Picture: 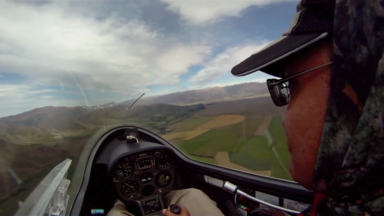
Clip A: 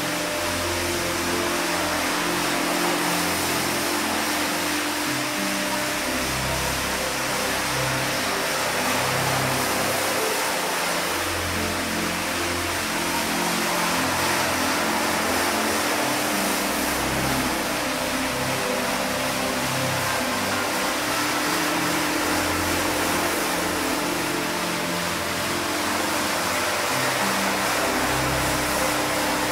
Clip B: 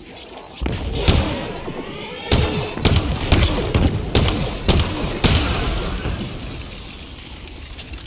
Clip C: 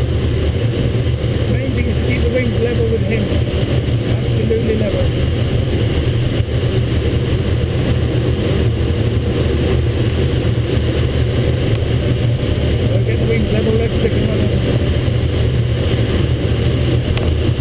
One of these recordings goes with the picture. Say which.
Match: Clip C